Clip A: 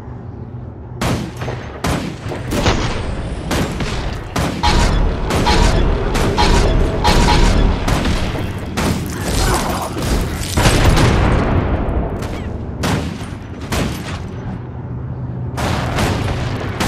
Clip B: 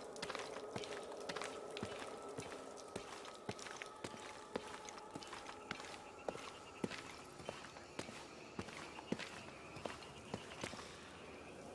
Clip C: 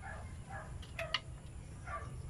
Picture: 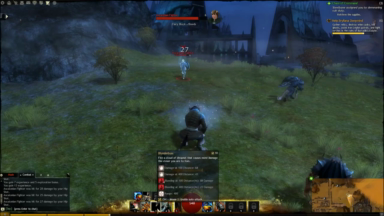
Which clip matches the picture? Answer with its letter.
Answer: A